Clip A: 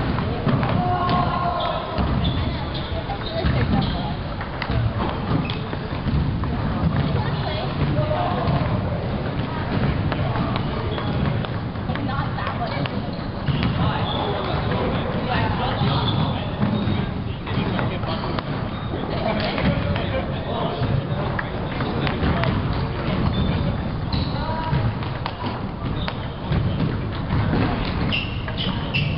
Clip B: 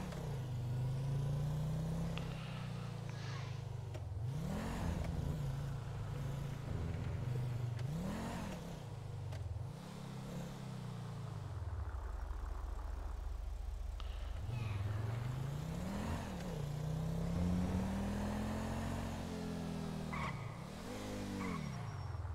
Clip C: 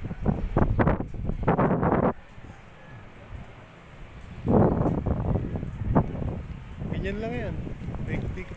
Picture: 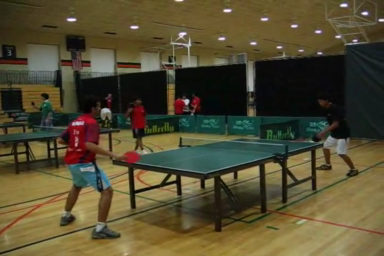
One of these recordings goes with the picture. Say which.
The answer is A